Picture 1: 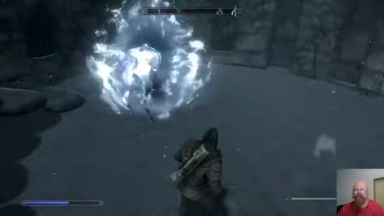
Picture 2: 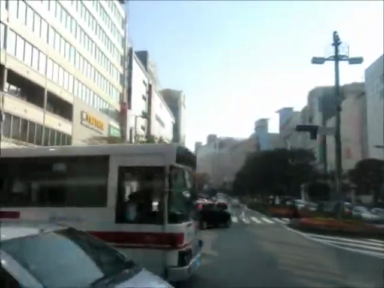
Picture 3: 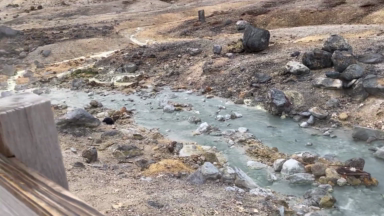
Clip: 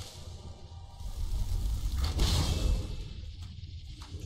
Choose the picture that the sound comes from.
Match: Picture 1